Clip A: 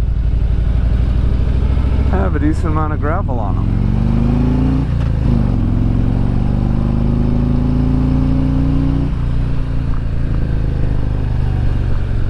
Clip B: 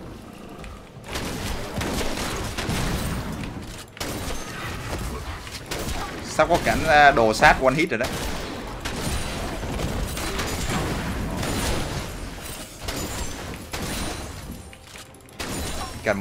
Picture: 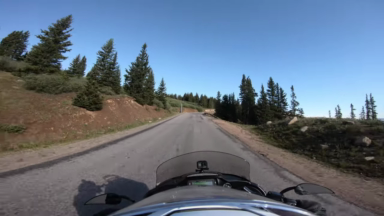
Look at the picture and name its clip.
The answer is A